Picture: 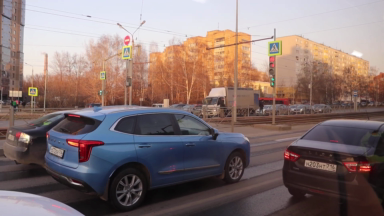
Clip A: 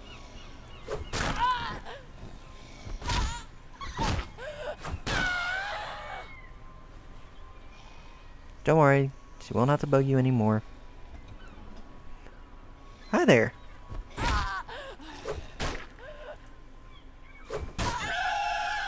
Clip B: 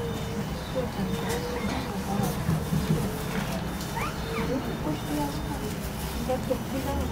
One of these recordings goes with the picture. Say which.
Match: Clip B